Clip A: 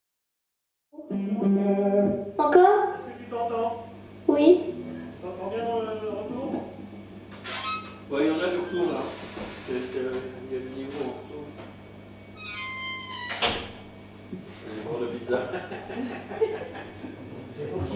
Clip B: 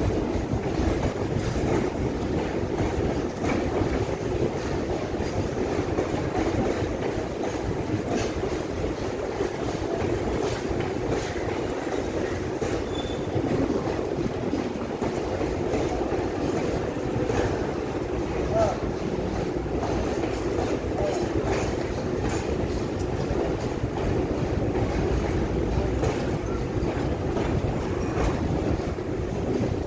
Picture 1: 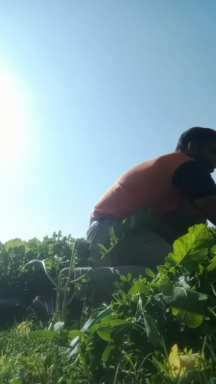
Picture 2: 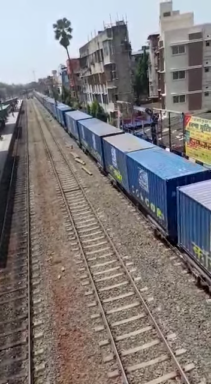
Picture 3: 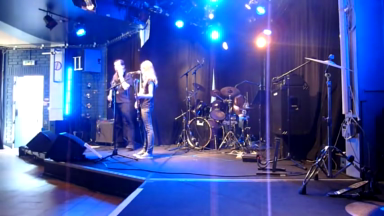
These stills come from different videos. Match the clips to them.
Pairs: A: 3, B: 2